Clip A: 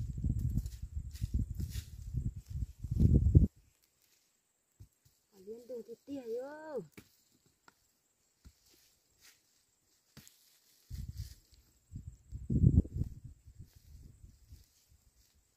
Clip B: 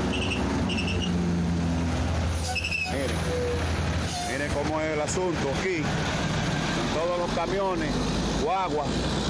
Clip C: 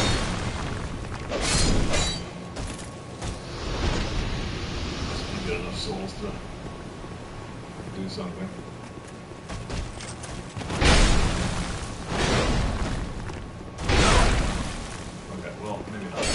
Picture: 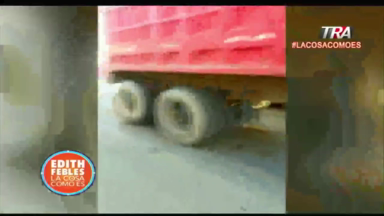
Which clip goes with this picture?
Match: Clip B